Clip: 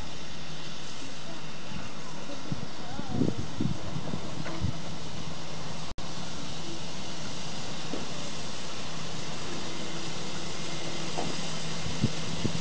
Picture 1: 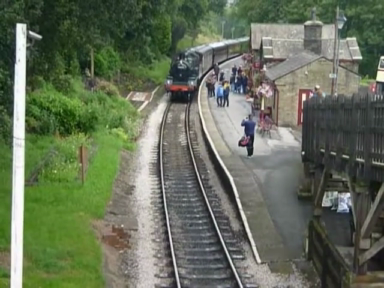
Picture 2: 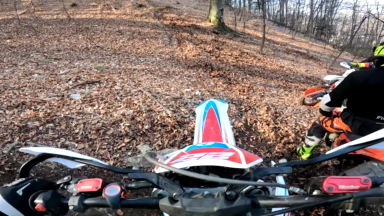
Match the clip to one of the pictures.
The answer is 1